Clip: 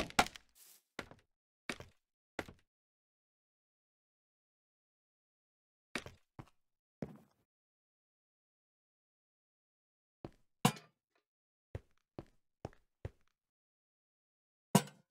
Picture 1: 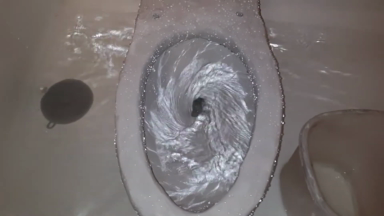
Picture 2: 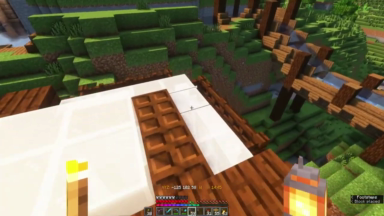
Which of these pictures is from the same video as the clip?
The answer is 2